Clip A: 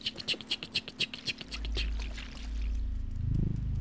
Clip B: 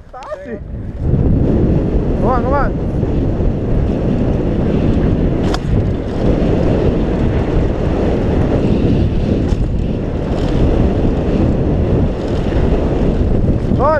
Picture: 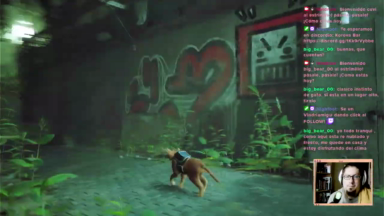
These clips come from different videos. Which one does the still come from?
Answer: A